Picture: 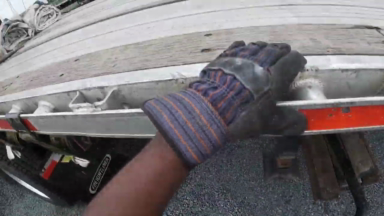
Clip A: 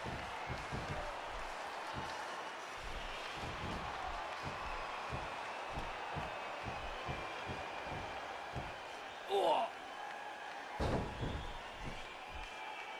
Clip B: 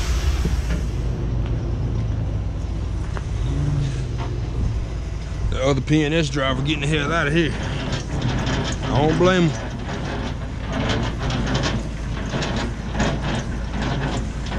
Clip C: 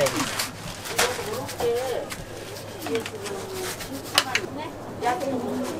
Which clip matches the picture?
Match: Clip B